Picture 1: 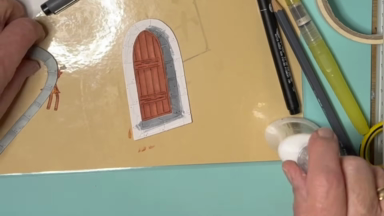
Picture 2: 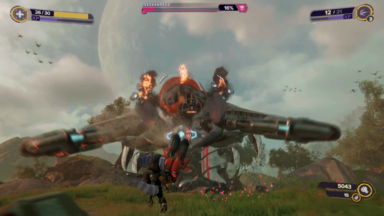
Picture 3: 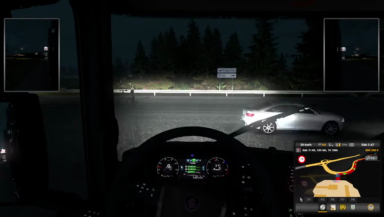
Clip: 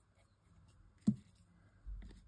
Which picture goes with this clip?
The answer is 1